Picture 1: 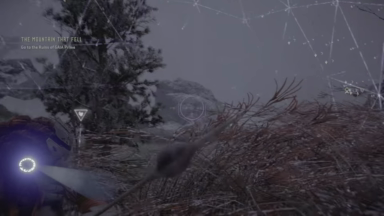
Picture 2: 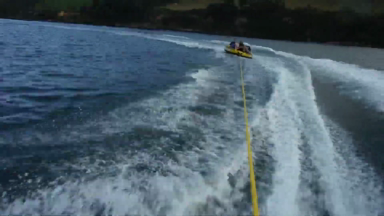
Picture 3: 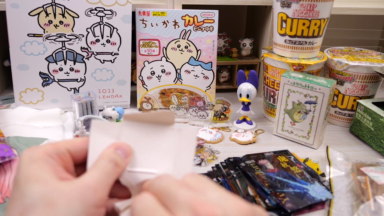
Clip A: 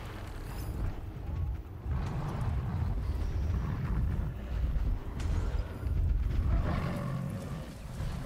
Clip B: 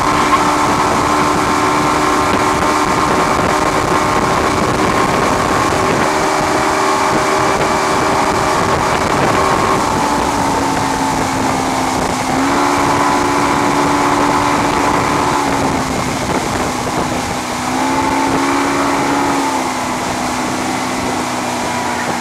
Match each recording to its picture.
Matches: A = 1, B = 2